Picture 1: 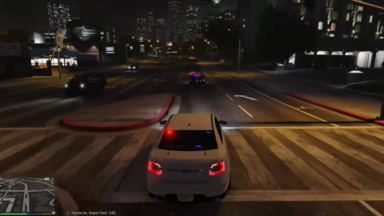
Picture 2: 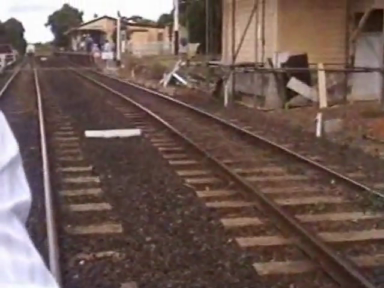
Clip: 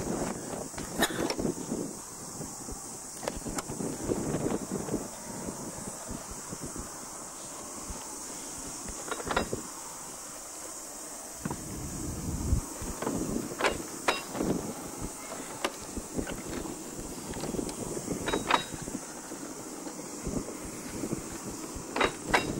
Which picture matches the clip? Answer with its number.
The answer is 2